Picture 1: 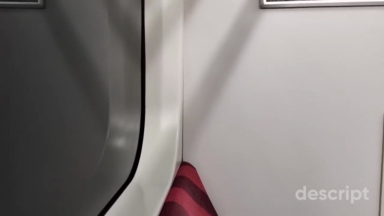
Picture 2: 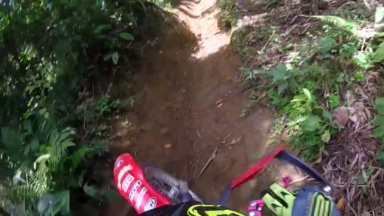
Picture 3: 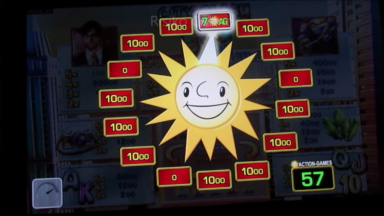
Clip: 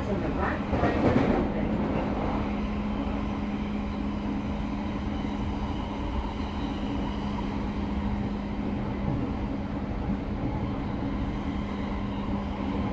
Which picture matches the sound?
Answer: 1